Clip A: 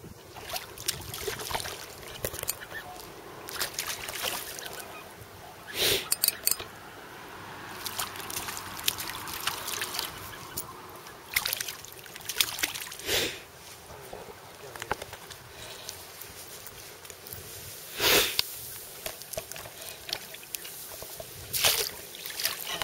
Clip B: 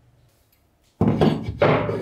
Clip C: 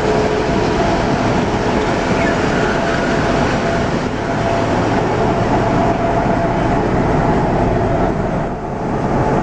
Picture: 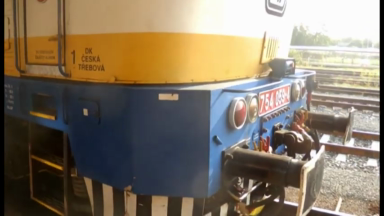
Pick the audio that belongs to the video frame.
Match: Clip C